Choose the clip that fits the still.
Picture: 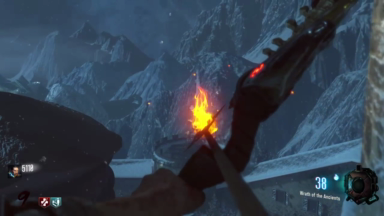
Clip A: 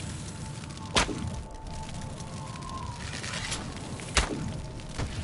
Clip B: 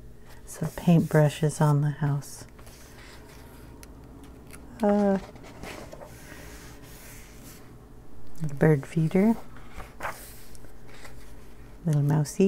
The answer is A